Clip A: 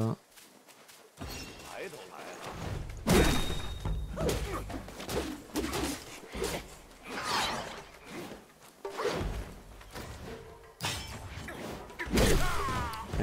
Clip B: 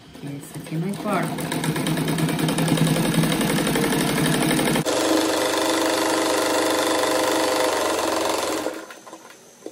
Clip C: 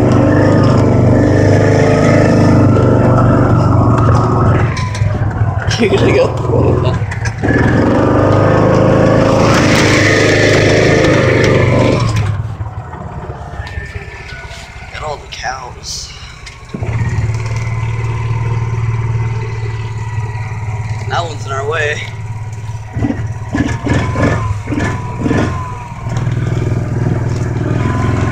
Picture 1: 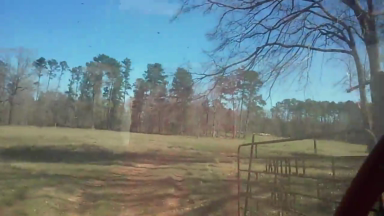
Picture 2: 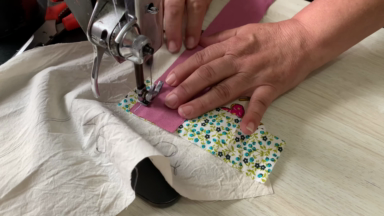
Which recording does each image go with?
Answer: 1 C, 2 B